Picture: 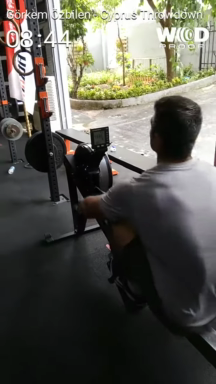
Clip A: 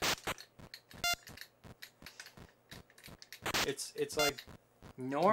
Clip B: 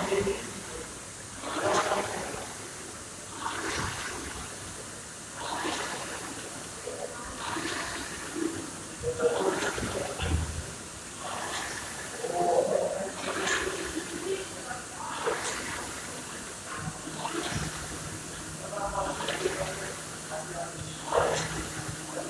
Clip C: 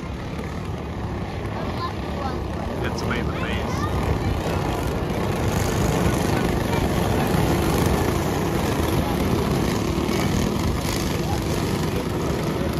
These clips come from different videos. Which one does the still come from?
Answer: B